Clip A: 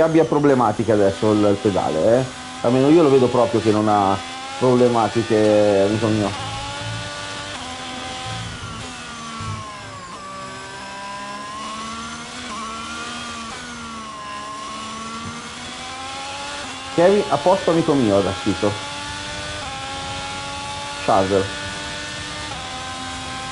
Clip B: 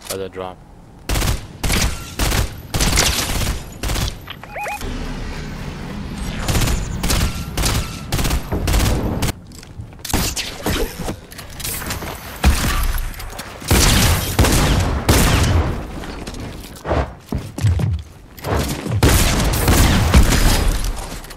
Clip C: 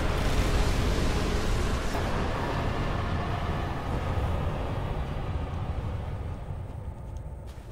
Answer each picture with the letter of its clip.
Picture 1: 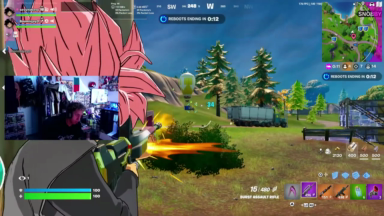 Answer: B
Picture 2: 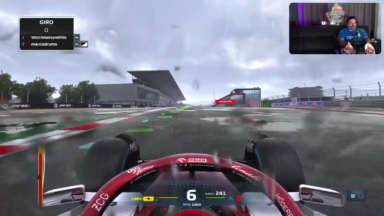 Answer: A